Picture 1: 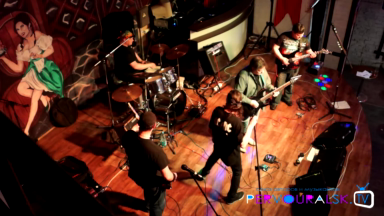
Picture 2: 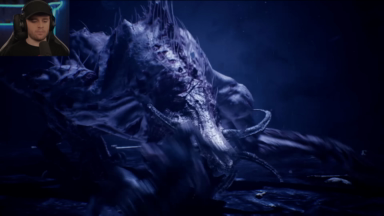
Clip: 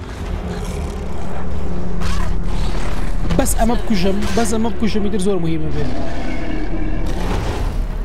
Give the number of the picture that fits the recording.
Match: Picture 2